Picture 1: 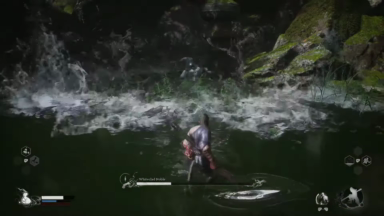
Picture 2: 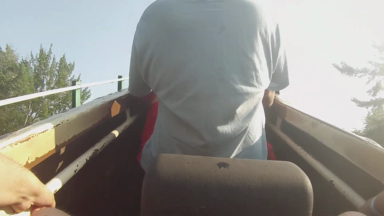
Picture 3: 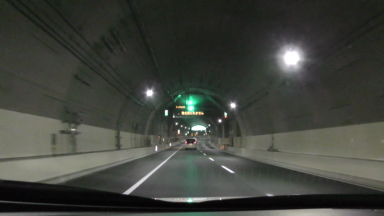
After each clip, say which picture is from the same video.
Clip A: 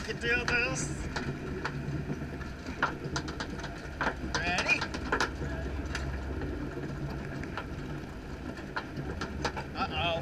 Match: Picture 2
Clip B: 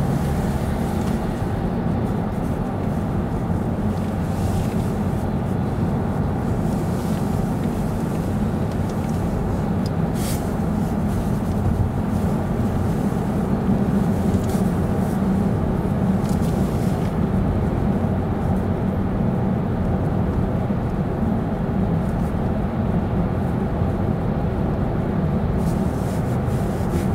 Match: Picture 3